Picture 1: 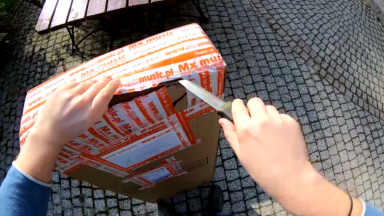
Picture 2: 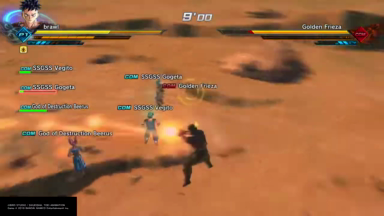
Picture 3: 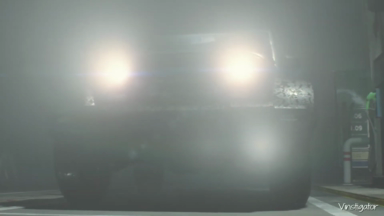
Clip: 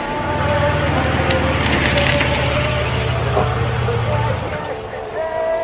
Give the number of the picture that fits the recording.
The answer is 3